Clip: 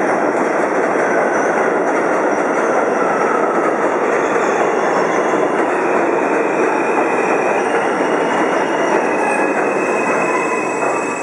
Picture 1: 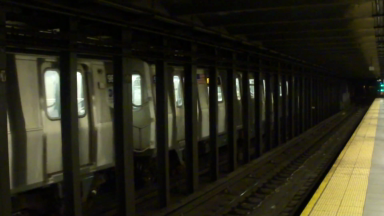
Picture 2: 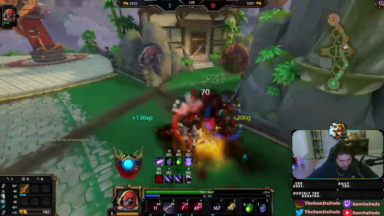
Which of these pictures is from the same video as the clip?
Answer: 1